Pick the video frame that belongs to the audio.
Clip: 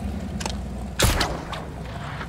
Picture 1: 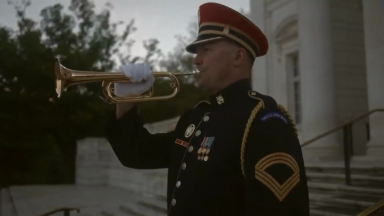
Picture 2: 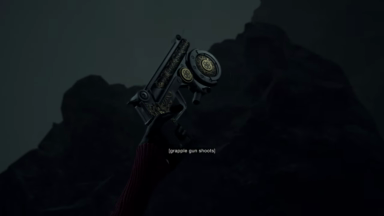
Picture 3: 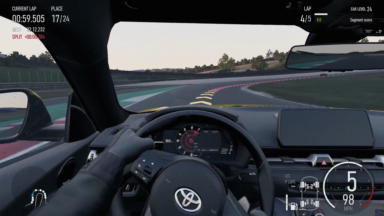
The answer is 2